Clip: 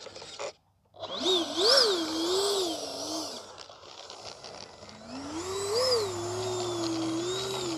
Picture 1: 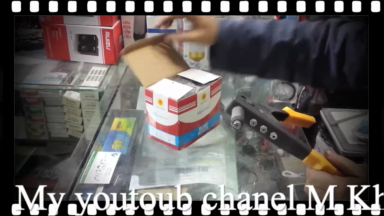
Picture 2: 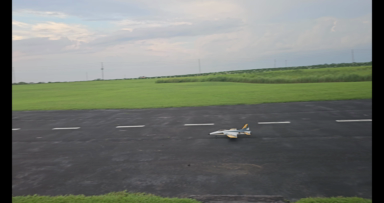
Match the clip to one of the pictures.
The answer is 2